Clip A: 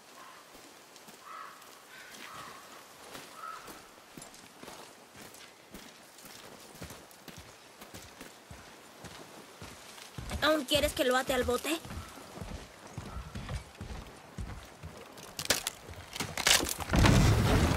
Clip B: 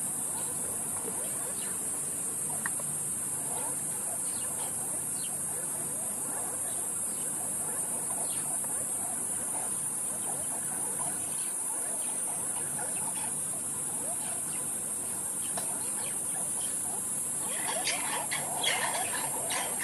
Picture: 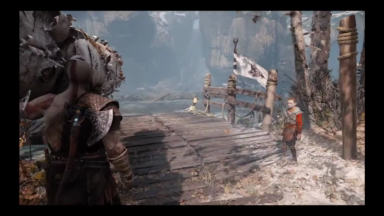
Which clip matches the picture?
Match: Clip A